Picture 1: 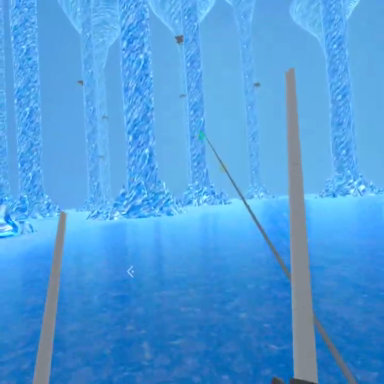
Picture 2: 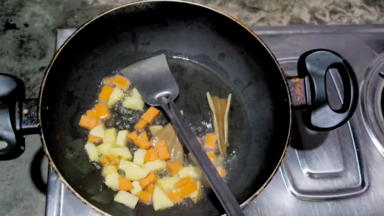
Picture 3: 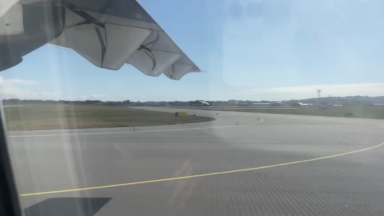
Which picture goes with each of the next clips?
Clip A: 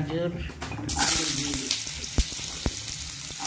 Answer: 2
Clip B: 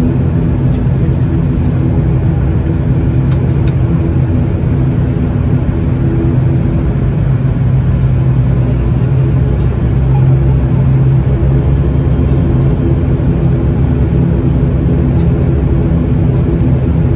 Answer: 3